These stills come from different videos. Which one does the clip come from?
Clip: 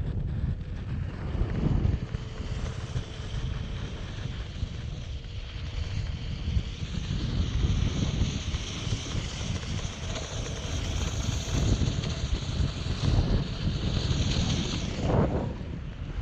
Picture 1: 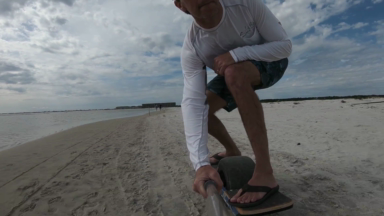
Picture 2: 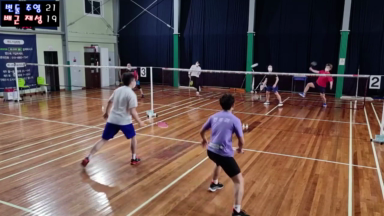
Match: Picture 1